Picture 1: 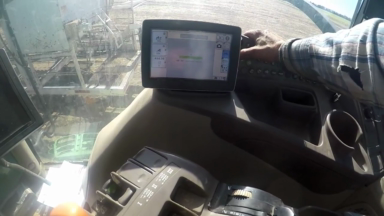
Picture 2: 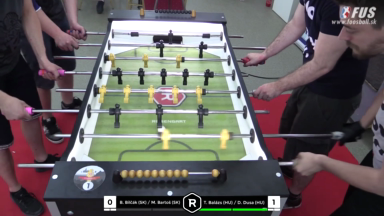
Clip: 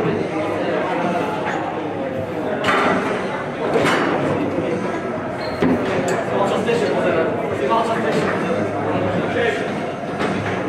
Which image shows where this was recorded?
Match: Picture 2